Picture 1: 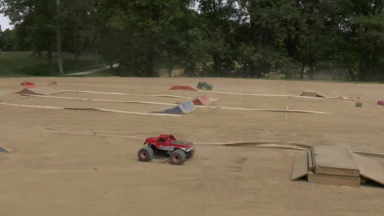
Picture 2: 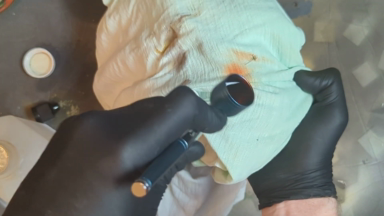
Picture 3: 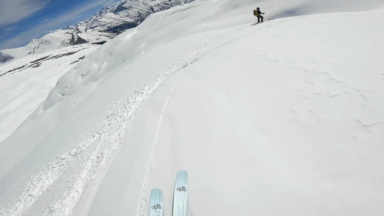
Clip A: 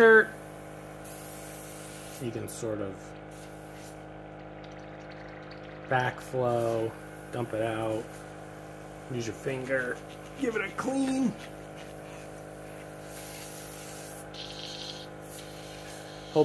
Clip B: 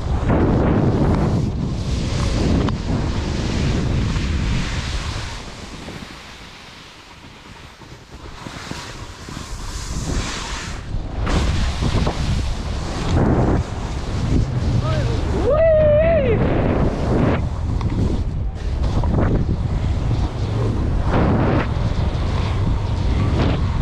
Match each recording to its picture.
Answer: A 2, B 3